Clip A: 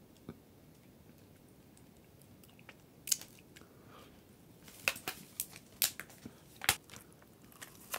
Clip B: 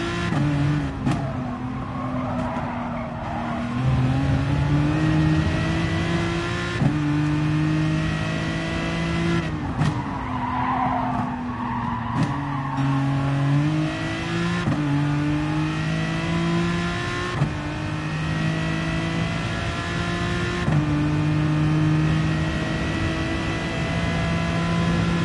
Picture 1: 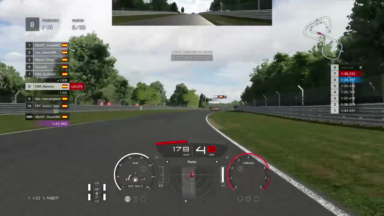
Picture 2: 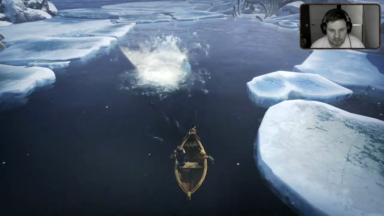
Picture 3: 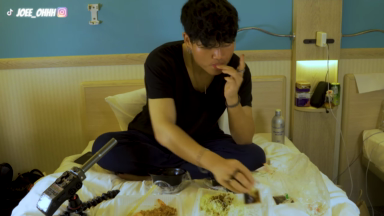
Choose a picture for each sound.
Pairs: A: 3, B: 1